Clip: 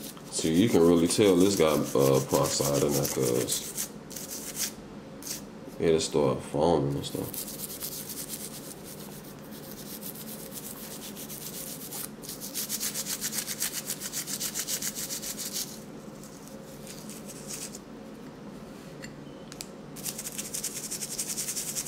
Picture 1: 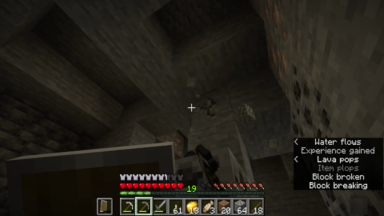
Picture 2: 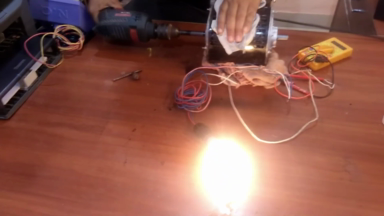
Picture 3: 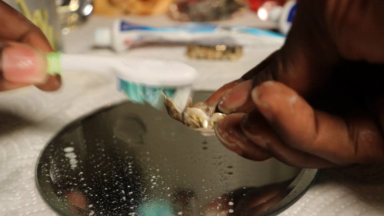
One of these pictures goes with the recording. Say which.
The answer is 3